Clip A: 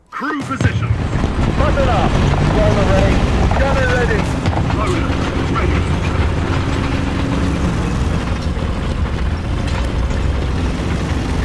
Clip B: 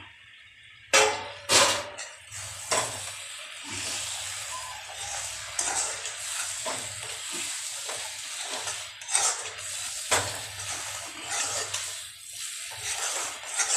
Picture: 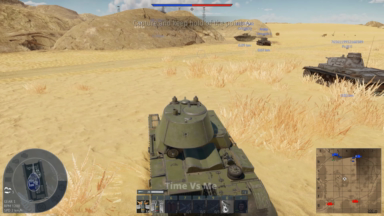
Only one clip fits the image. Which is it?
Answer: A